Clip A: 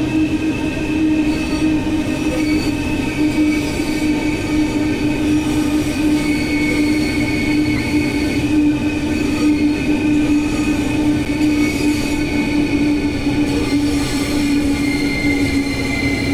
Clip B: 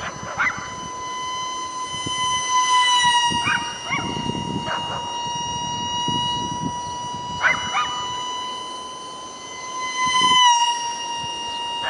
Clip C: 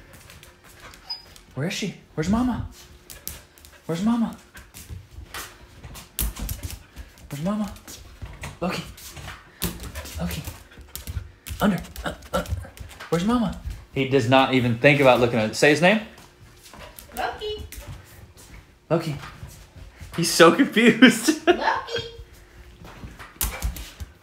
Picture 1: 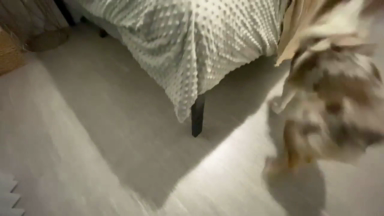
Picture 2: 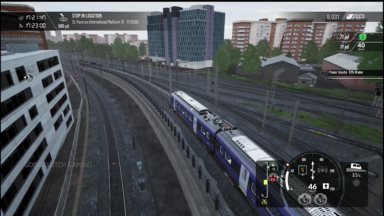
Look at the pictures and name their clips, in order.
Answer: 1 C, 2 A